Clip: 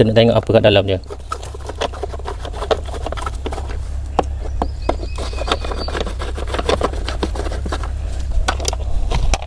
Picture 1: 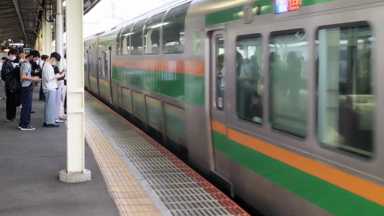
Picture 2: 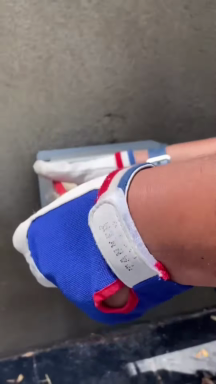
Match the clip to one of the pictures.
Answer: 2